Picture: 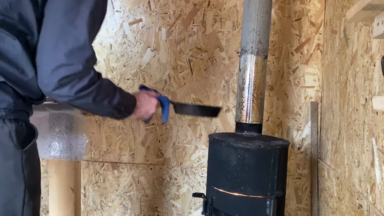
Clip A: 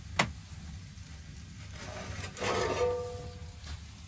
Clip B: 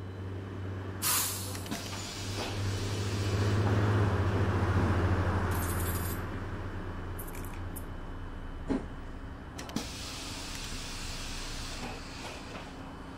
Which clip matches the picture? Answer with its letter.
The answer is A